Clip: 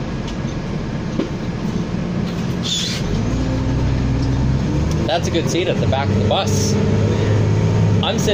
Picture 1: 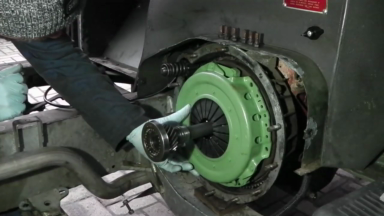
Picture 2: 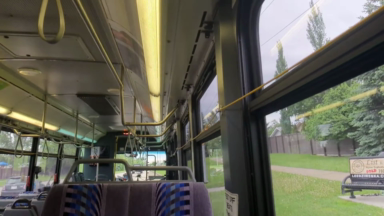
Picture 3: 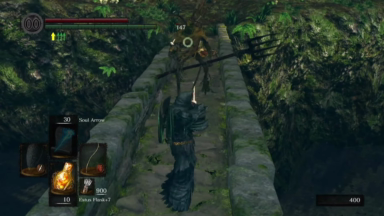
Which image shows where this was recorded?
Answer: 2